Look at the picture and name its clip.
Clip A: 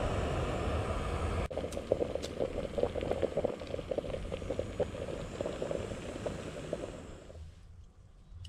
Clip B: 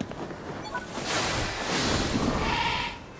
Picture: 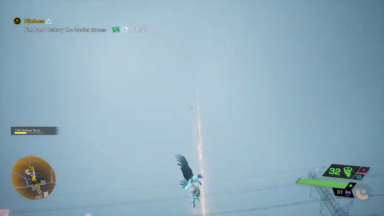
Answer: B